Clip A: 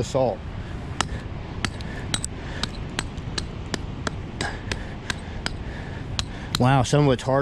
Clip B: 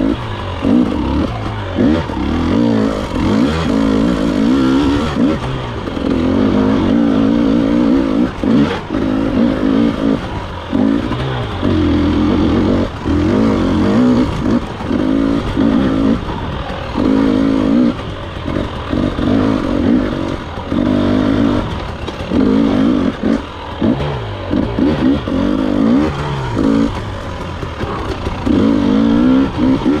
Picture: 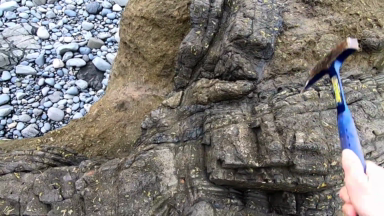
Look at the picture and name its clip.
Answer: A